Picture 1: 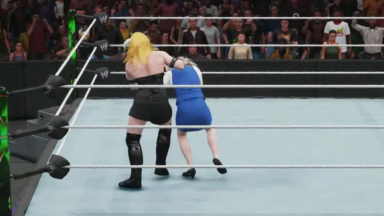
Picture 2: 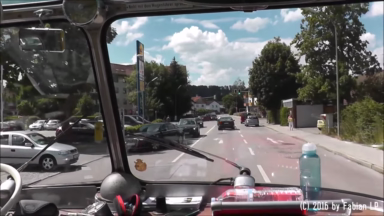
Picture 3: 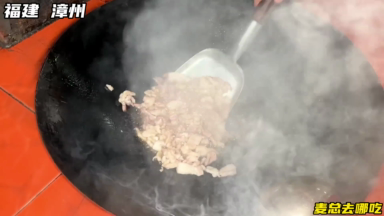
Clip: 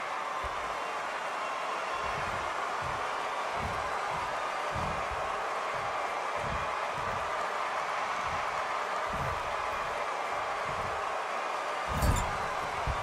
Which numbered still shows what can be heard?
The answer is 1